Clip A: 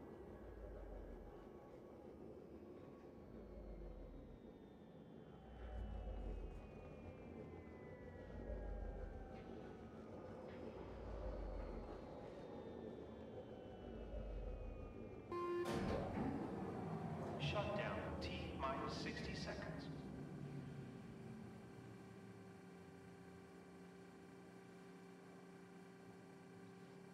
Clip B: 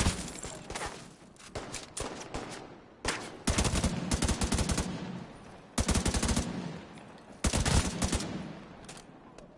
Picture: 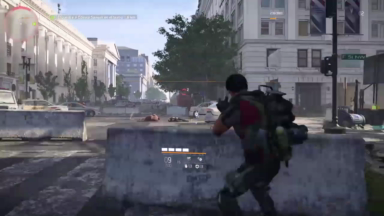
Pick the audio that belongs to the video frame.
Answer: B